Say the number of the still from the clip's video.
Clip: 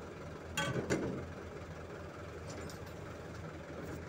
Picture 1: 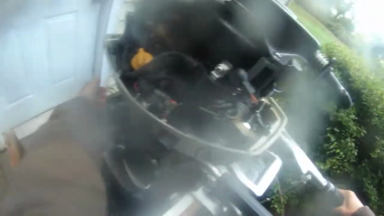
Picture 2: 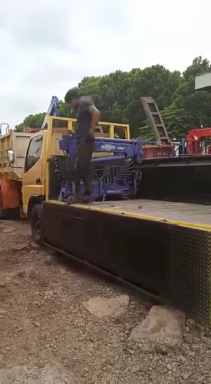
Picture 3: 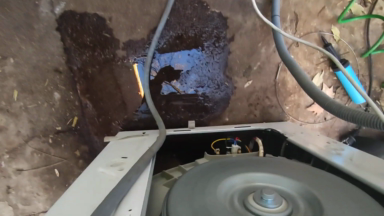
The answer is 2